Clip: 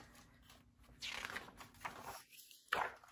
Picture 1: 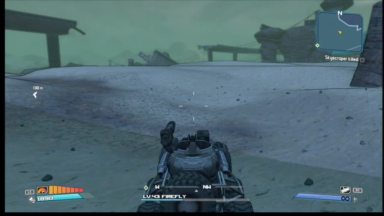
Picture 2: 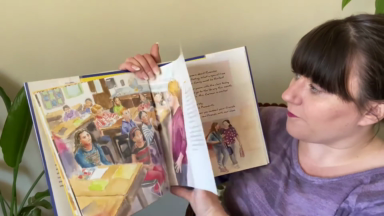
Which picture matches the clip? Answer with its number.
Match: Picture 2